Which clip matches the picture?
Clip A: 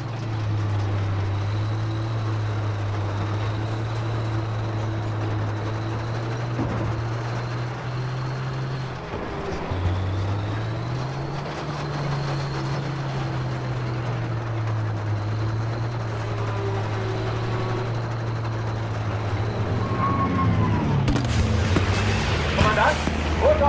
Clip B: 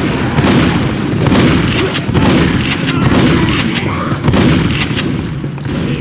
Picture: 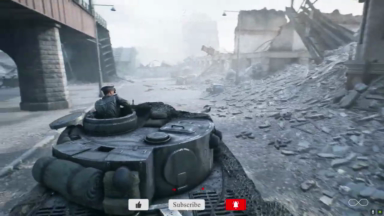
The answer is A